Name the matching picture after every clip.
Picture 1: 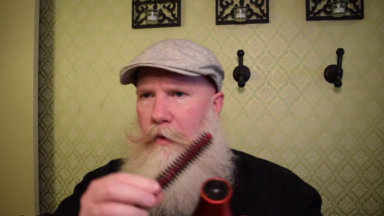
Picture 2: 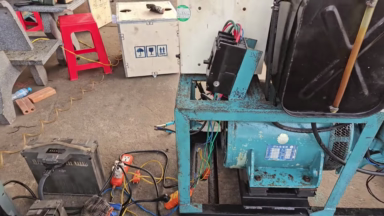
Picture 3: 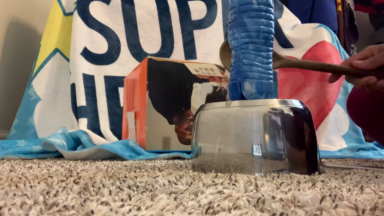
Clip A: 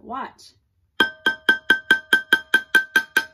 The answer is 3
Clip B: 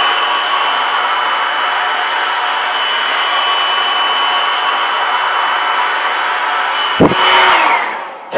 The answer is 1